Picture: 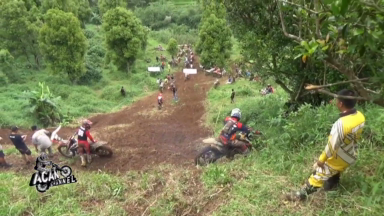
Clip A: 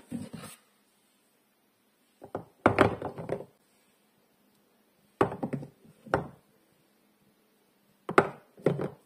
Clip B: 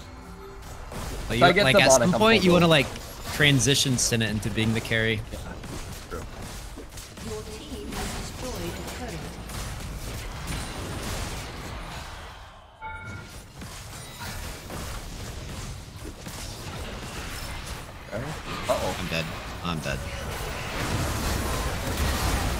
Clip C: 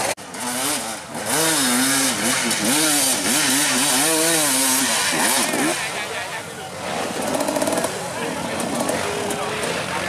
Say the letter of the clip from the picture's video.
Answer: C